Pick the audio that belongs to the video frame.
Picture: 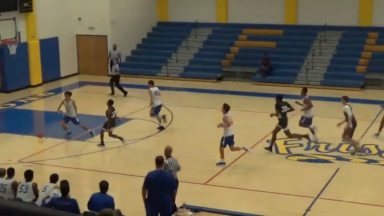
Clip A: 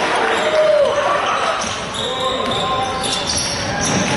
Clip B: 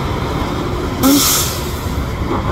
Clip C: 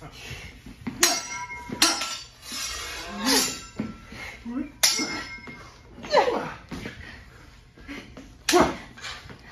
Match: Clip A